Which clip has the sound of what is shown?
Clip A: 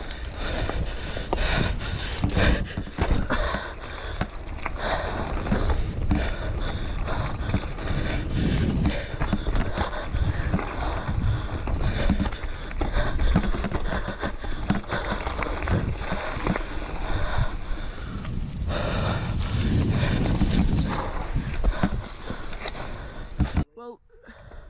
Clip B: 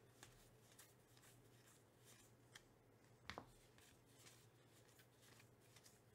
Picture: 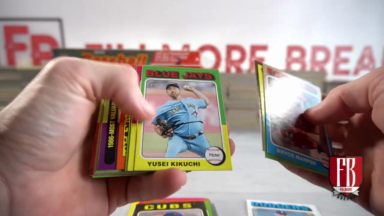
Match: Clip B